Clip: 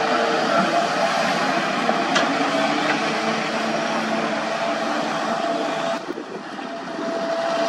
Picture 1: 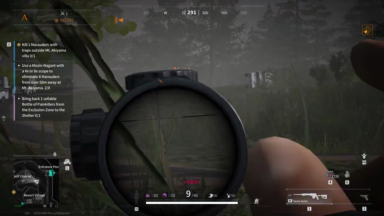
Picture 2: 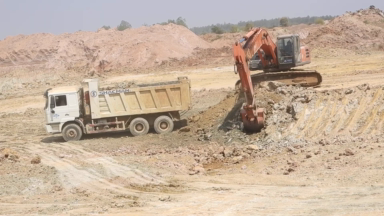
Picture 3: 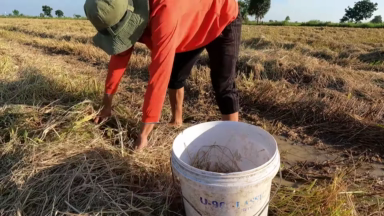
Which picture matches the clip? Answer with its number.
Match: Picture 2